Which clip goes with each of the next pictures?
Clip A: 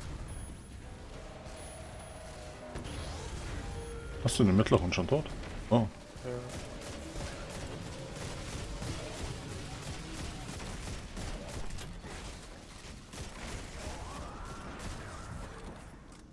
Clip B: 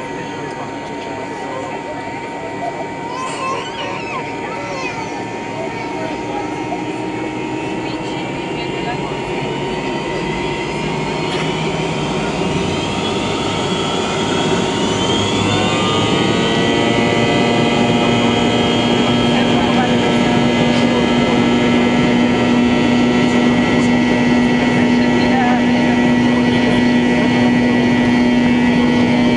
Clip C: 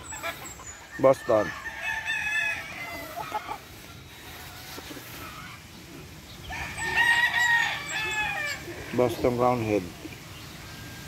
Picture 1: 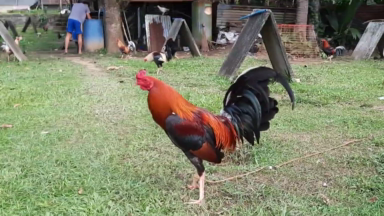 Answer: C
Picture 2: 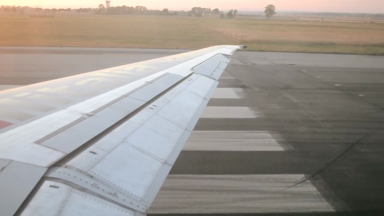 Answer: B